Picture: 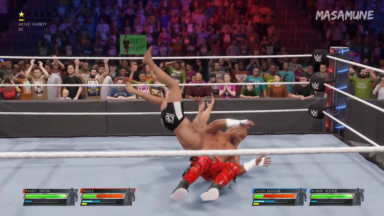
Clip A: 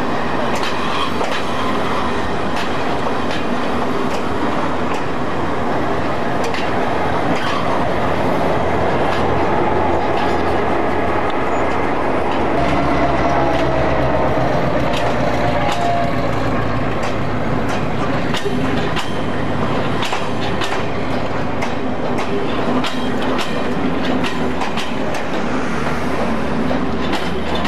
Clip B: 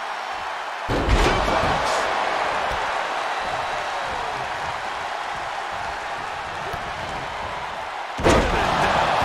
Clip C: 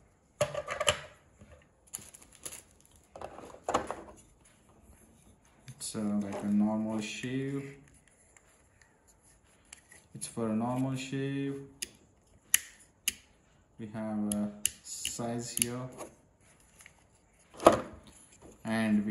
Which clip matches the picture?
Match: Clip B